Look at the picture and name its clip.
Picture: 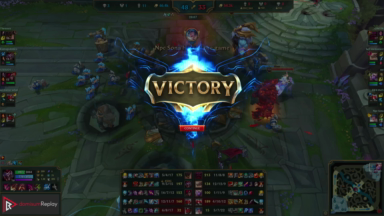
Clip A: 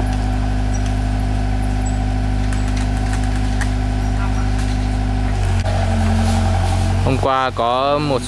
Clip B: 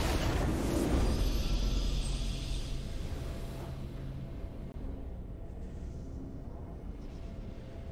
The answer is B